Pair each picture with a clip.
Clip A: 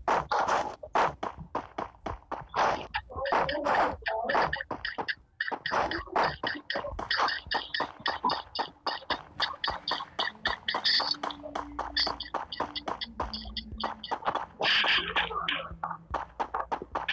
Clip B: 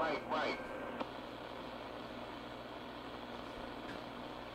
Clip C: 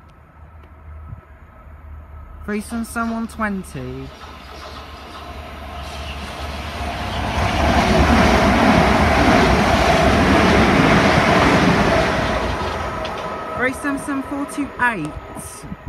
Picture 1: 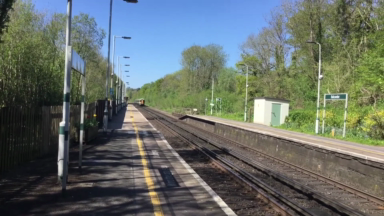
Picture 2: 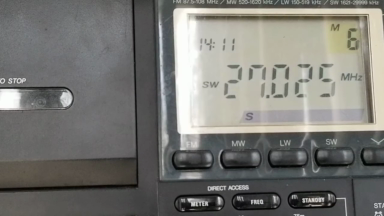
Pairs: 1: C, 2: B